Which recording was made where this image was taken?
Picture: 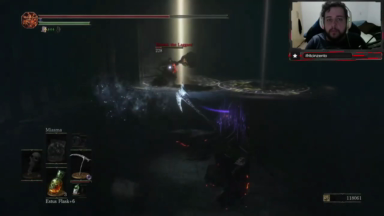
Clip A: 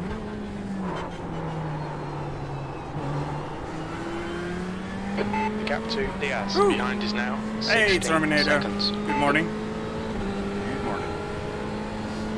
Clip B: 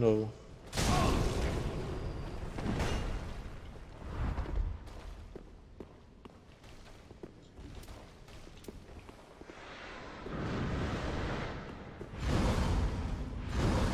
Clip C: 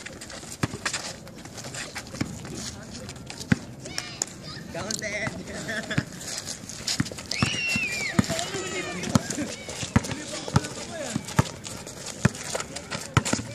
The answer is B